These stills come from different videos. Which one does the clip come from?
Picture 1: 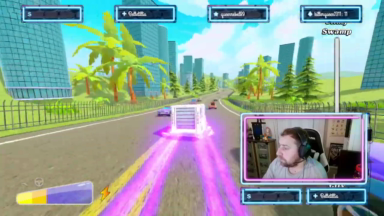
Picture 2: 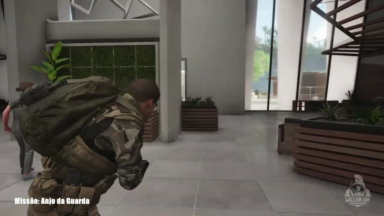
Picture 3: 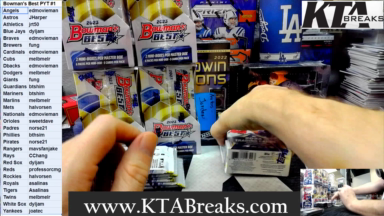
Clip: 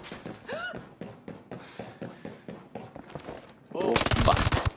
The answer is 2